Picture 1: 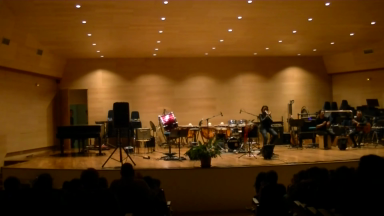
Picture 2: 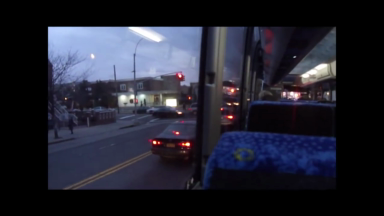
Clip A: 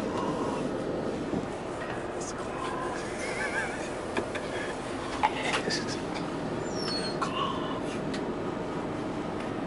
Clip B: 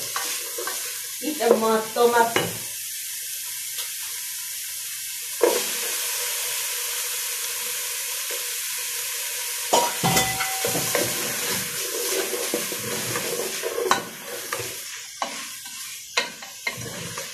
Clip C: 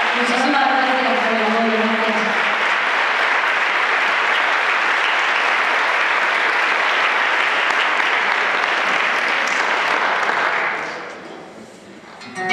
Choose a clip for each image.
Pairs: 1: C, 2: A